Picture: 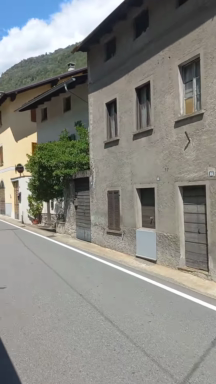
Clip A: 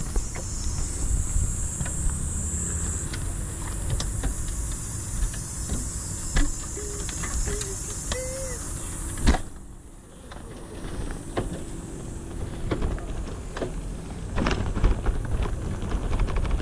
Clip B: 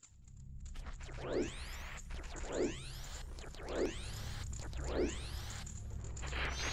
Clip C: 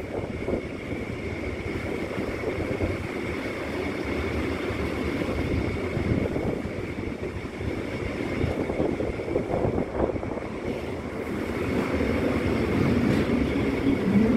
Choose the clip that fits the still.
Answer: C